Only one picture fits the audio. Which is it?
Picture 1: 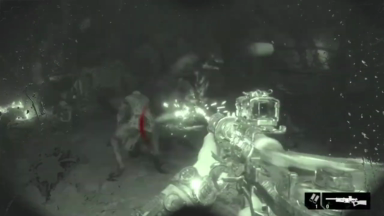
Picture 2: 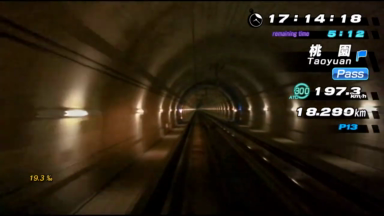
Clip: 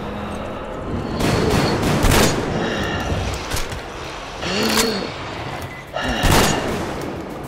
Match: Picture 1